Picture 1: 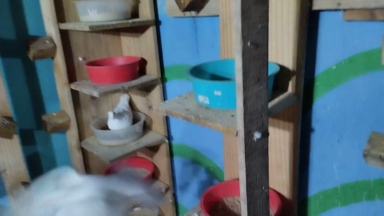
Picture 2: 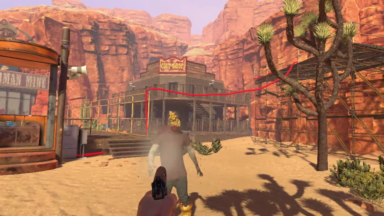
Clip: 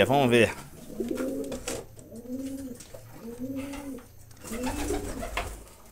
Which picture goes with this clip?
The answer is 1